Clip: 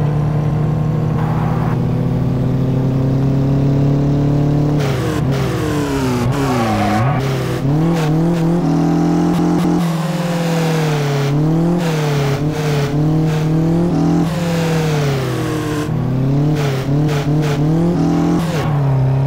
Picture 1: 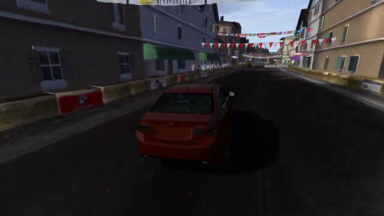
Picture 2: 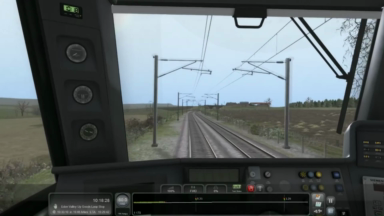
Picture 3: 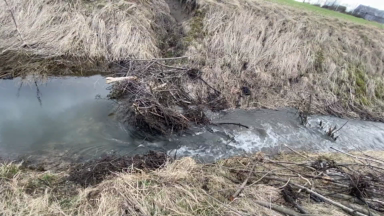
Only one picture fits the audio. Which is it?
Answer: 1